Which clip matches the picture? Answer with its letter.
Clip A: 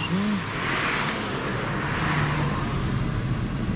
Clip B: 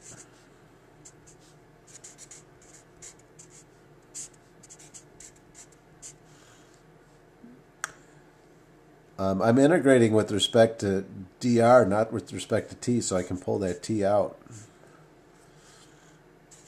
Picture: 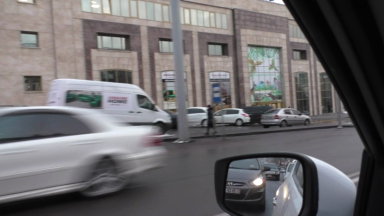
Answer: A